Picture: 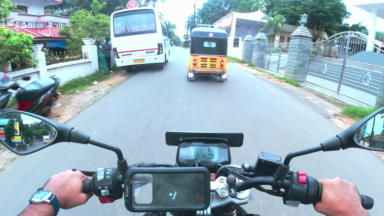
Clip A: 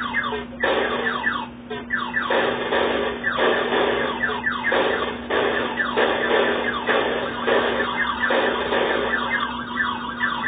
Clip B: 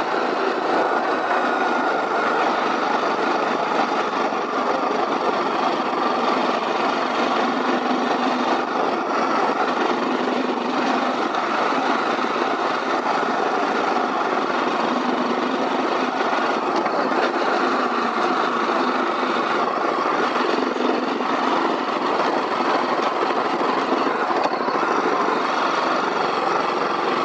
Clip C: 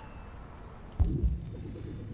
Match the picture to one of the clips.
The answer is B